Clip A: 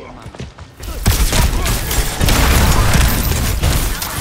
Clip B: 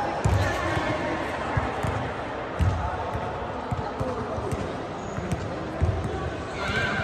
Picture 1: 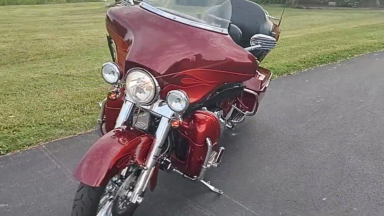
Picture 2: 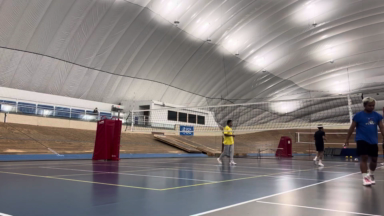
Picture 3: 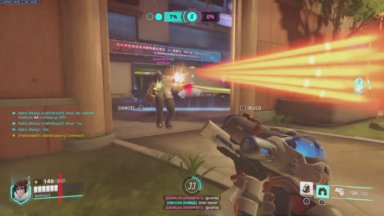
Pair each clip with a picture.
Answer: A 3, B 2